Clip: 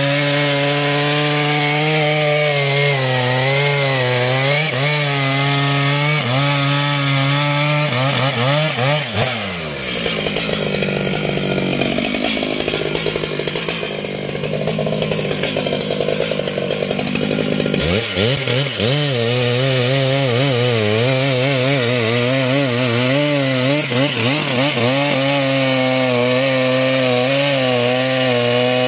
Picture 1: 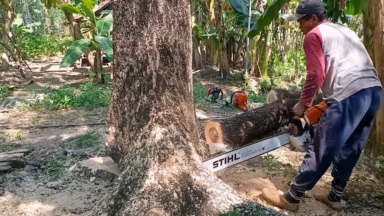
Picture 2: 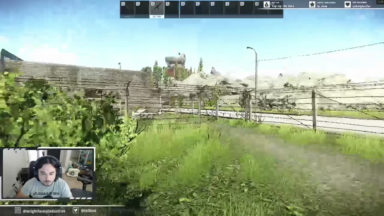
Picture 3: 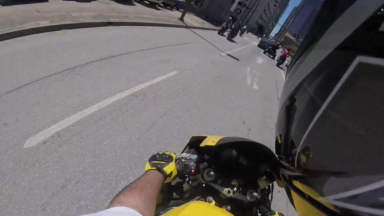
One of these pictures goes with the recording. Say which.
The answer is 1